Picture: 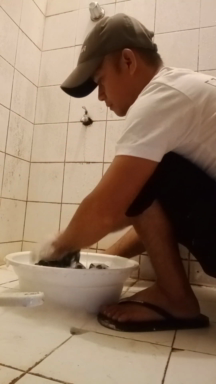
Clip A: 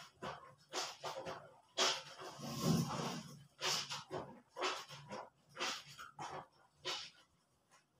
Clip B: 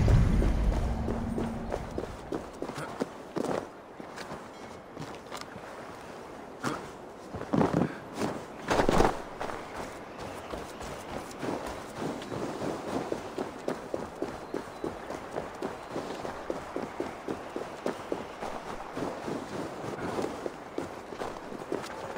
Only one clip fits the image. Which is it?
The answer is A